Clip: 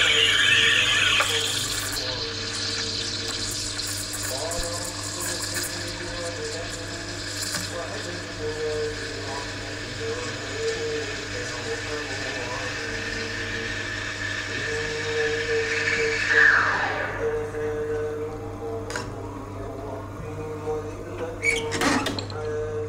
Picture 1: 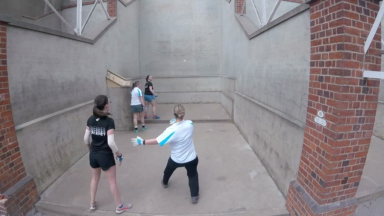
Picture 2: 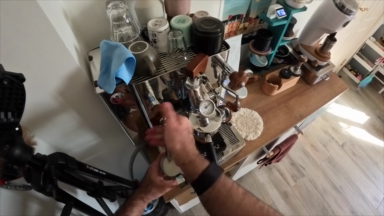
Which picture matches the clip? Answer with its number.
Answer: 2